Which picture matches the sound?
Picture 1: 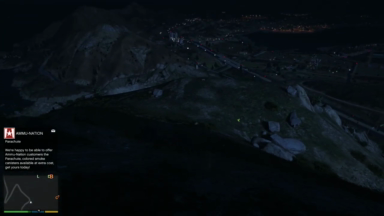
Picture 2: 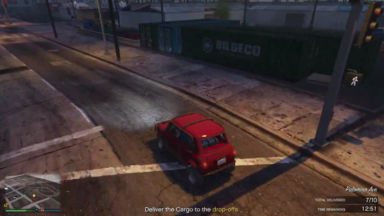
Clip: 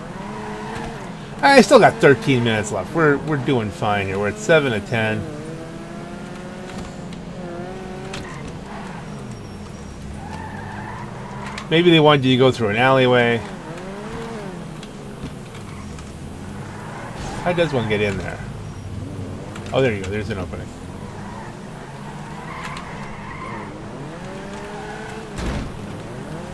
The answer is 2